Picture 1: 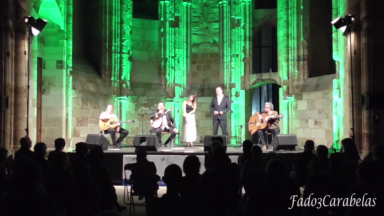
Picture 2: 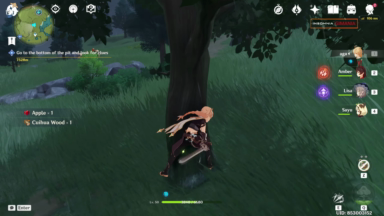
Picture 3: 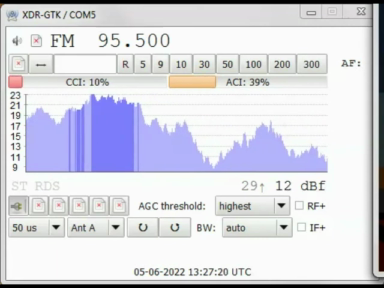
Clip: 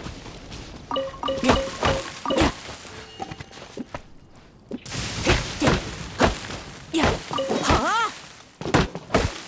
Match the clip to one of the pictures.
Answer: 2